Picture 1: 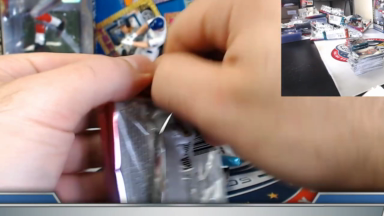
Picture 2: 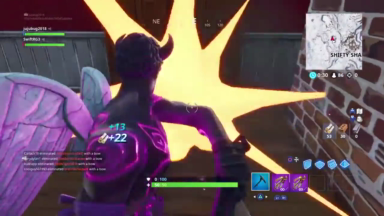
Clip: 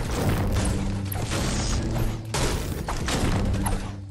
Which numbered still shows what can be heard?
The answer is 2